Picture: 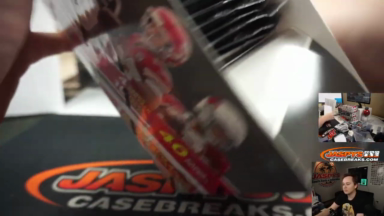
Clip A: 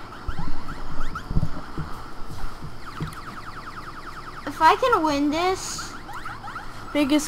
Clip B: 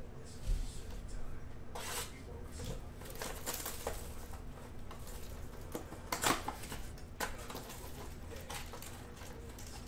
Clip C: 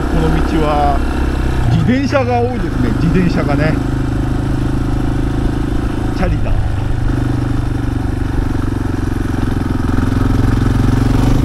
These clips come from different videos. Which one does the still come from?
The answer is B